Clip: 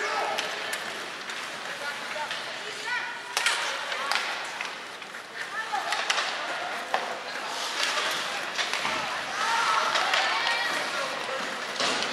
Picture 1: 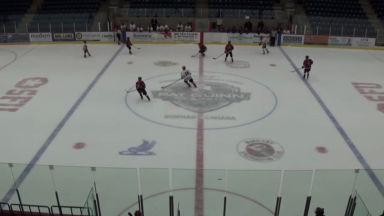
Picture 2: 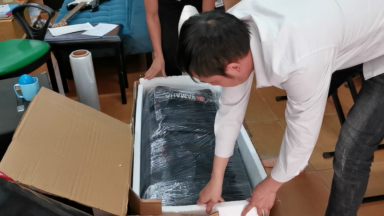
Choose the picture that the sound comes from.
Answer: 1